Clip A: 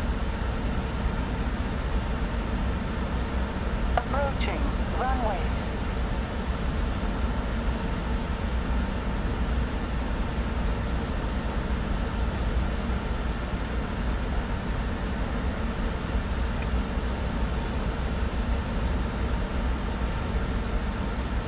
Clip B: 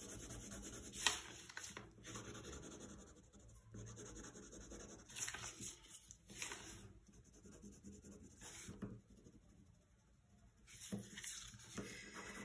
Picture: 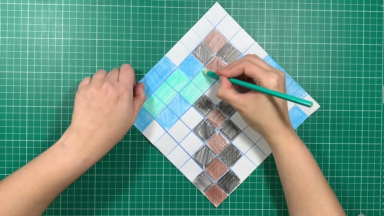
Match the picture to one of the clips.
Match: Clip B